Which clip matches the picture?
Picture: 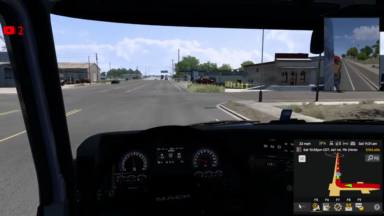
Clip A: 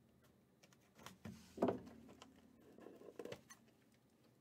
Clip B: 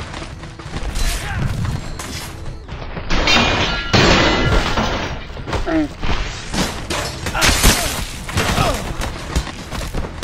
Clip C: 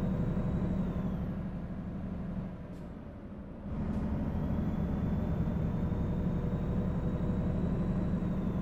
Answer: C